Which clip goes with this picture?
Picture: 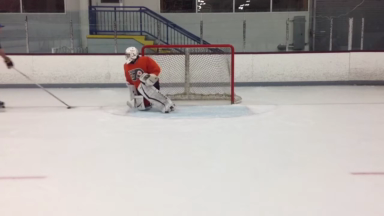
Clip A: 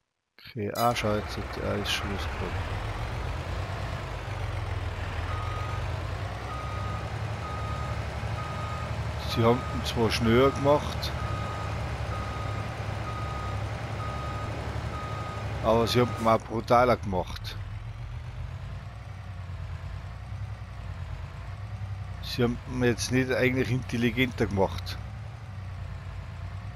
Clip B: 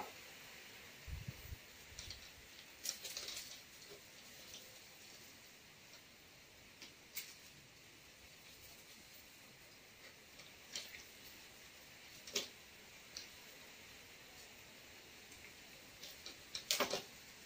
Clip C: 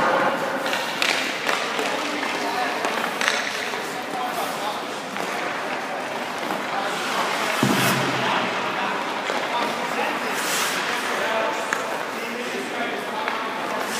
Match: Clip C